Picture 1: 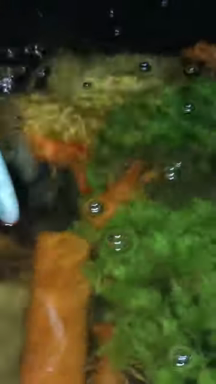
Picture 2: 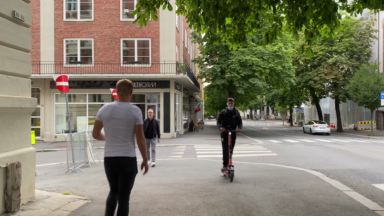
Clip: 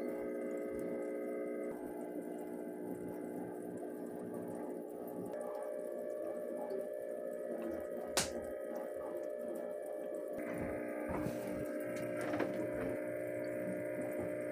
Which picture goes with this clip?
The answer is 1